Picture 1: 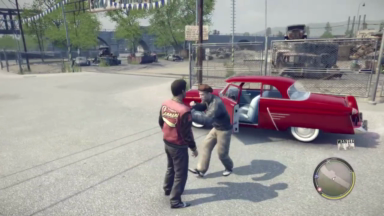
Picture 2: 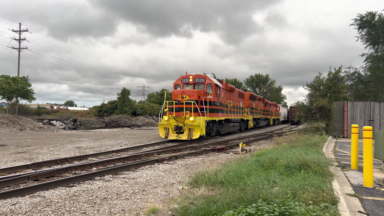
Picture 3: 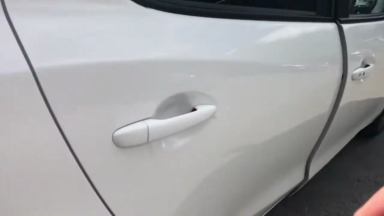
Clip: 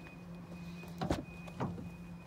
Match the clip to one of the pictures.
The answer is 3